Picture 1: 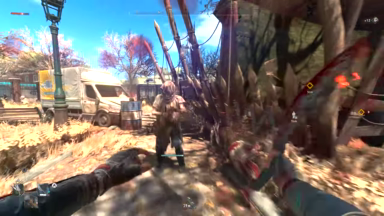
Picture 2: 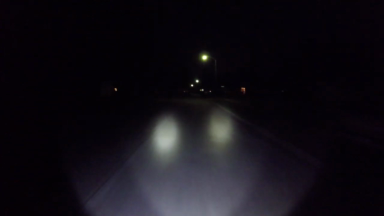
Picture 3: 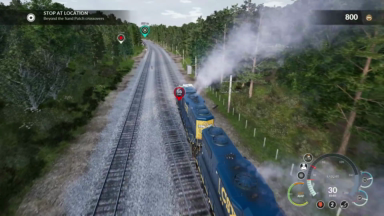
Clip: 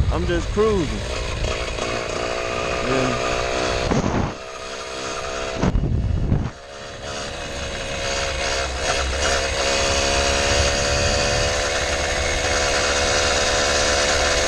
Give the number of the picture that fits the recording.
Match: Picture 2